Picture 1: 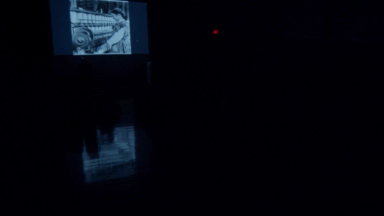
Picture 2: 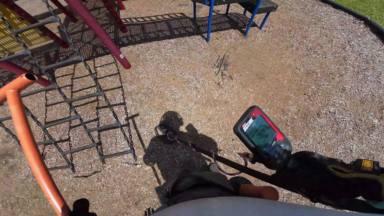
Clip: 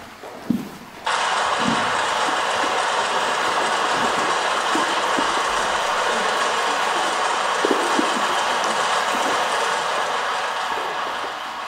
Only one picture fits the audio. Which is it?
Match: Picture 1